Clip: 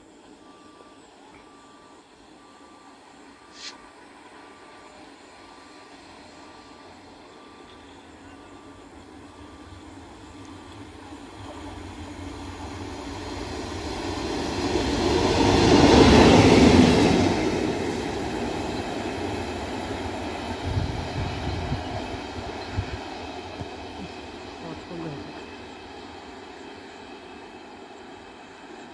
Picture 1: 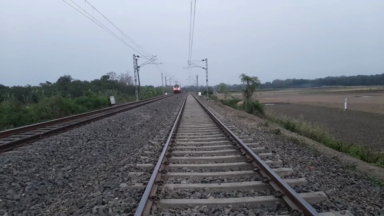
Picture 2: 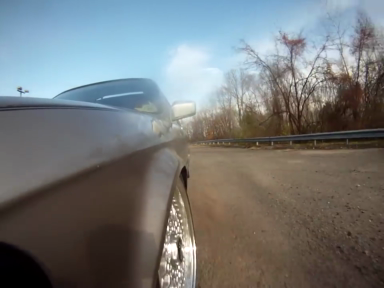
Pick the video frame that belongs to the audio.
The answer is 1